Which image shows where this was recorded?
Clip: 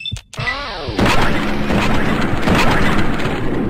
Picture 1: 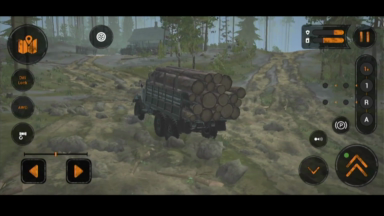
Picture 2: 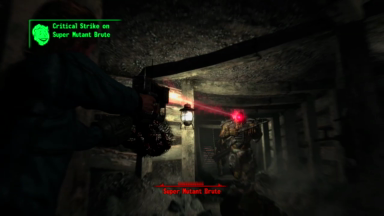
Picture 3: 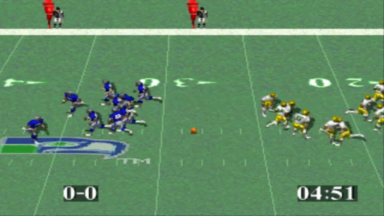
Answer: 2